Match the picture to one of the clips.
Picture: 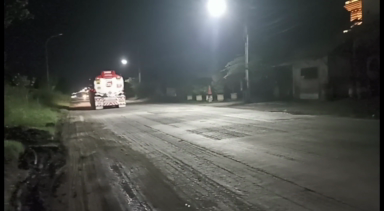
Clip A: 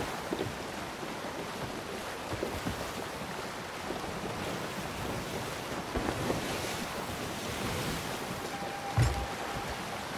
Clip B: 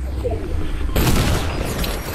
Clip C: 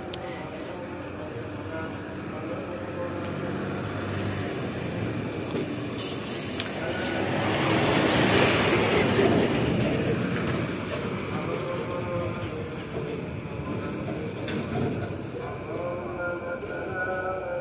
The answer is C